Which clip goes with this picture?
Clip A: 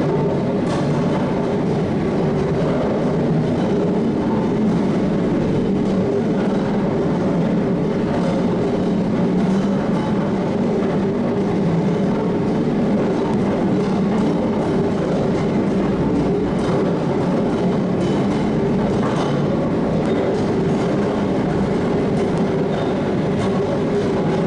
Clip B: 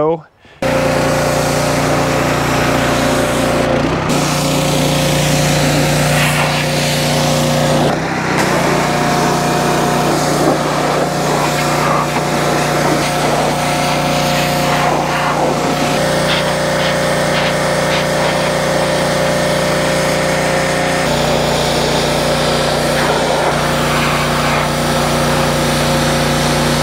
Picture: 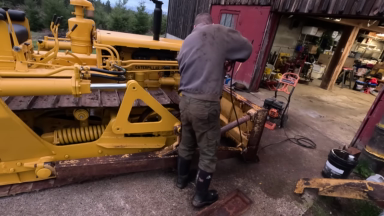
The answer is B